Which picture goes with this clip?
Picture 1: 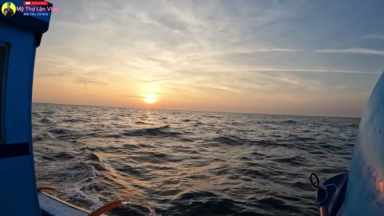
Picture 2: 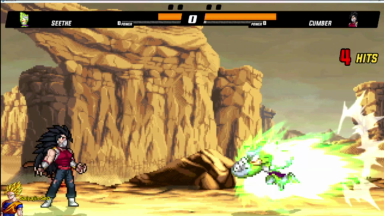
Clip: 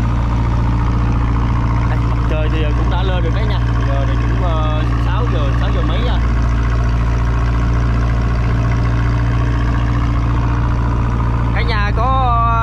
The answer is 1